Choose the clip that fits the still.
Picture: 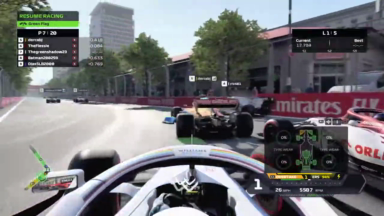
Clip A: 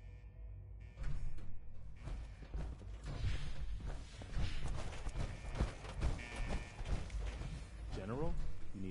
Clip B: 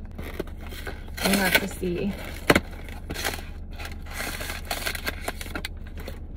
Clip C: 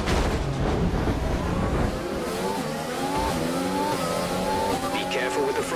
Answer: C